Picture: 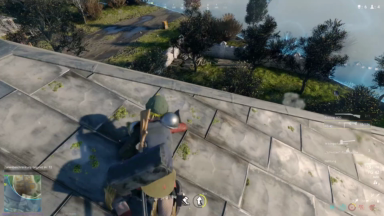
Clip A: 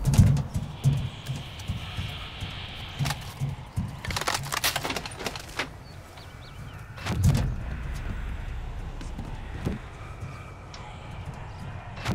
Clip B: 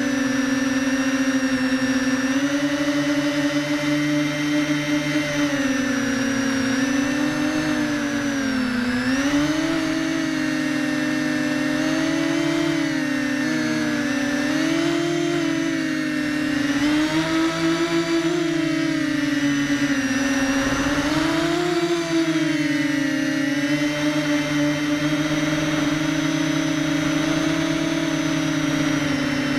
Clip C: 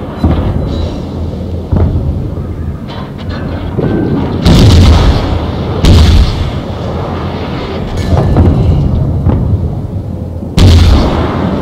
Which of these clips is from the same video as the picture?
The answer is A